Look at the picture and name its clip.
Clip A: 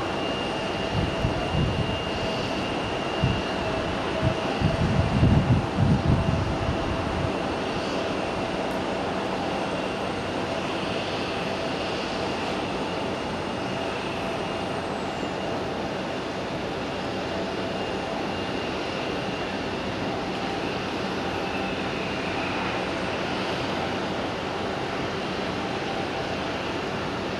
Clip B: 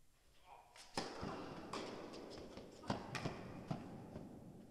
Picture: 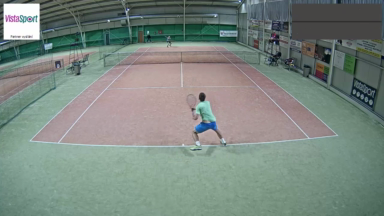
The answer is B